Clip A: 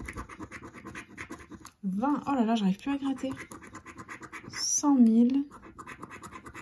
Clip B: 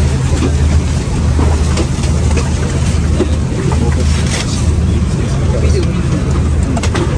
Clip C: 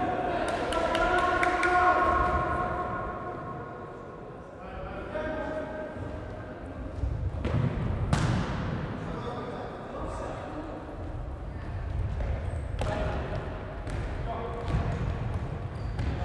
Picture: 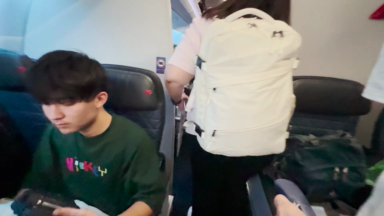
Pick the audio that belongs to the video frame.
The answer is B